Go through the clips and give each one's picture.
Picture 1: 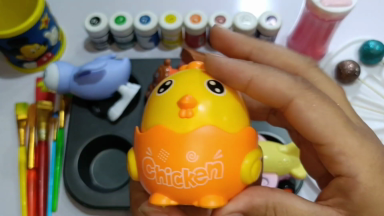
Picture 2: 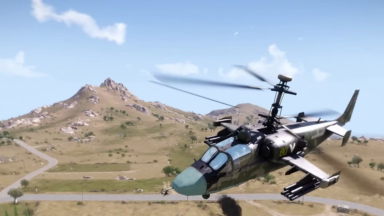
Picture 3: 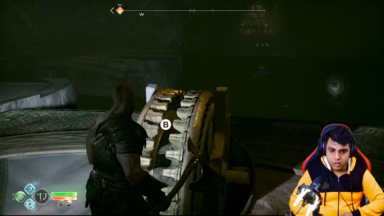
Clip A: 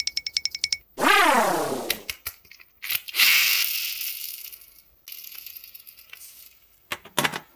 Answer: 1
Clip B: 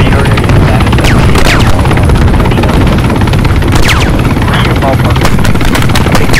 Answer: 2